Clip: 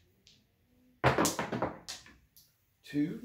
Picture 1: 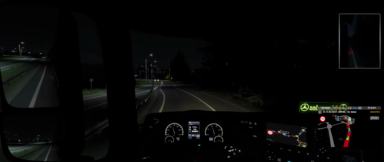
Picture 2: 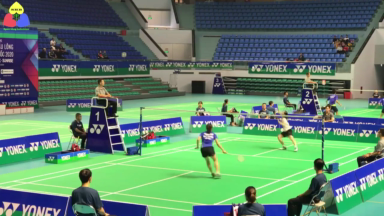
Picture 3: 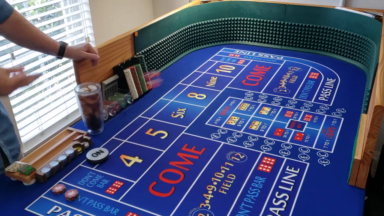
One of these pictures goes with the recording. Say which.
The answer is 3